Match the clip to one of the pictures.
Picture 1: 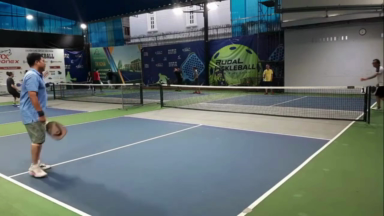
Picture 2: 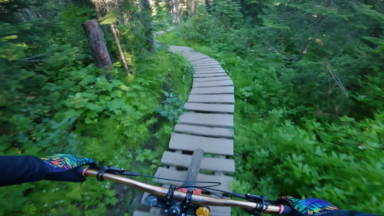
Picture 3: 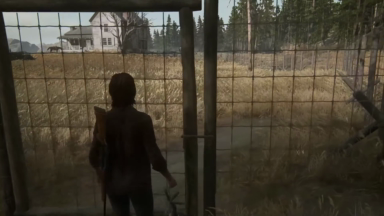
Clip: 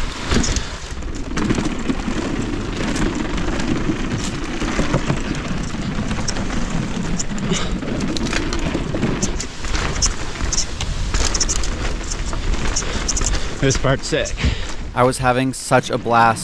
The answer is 2